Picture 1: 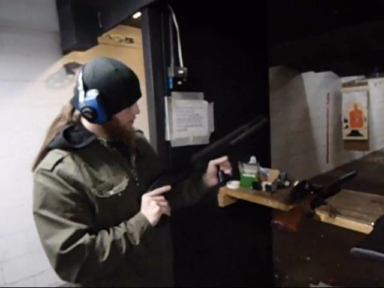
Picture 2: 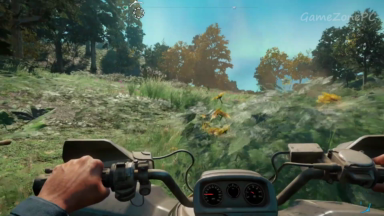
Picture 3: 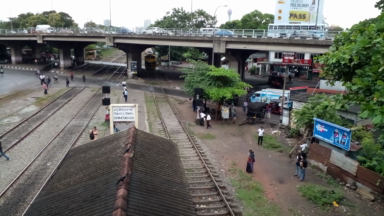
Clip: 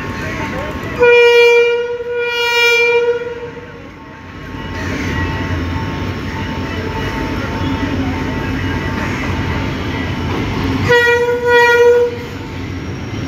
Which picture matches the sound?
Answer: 3